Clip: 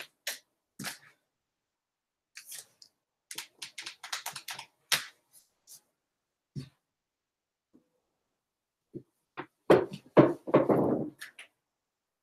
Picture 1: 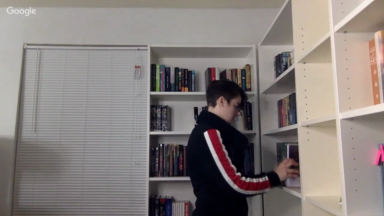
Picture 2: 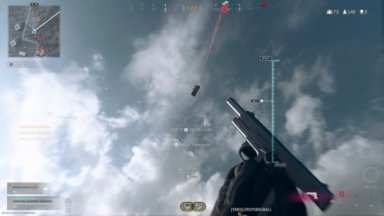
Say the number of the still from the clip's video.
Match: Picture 1